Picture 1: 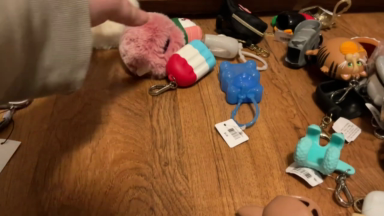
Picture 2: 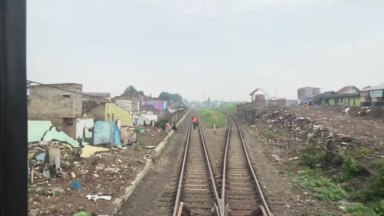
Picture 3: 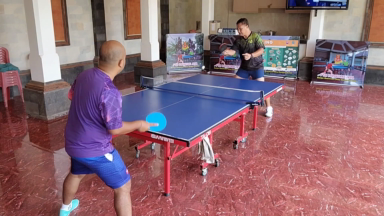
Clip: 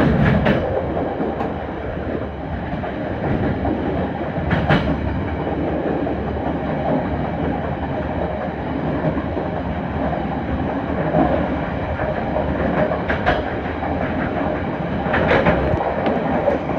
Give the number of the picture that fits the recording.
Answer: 2